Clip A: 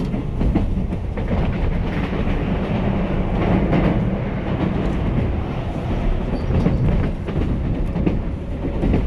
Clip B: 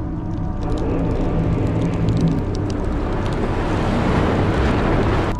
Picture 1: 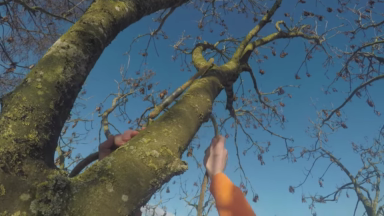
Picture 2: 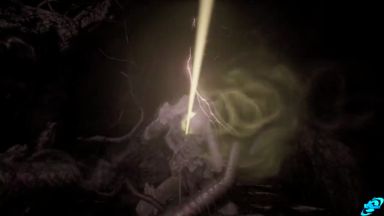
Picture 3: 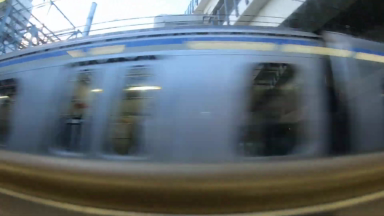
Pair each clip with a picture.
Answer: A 3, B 2